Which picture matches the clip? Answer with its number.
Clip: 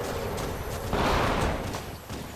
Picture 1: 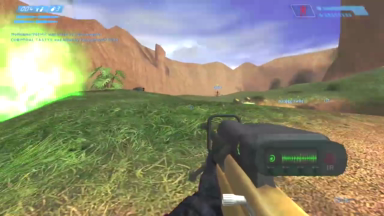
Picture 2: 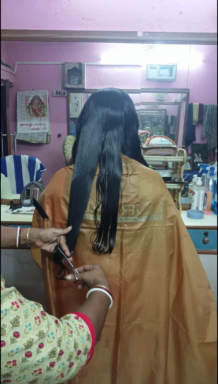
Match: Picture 1